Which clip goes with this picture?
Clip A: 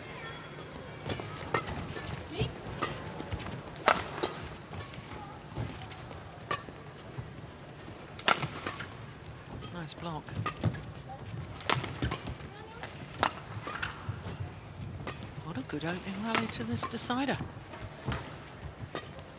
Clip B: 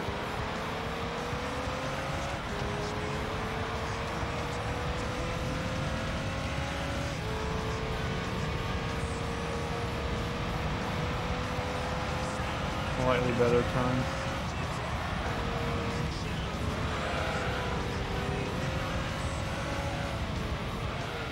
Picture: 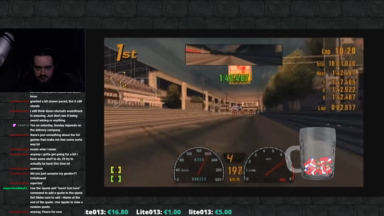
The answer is B